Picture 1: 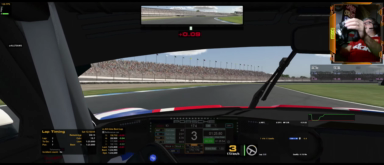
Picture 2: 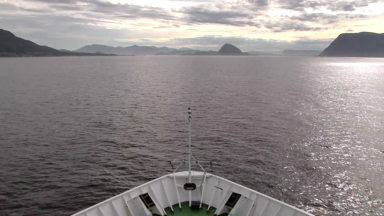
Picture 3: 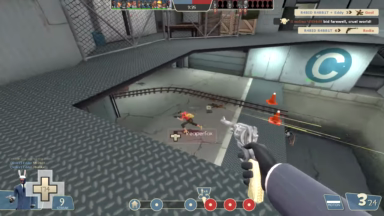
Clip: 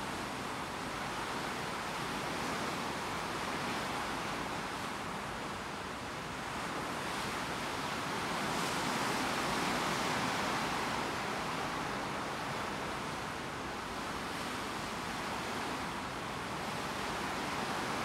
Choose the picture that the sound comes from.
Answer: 2